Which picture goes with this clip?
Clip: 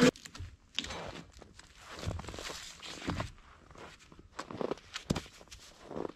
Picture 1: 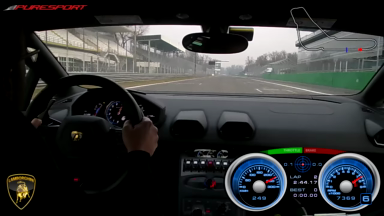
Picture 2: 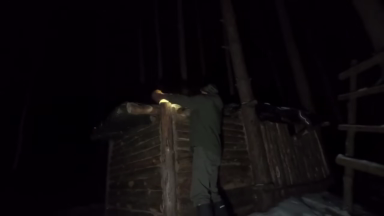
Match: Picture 2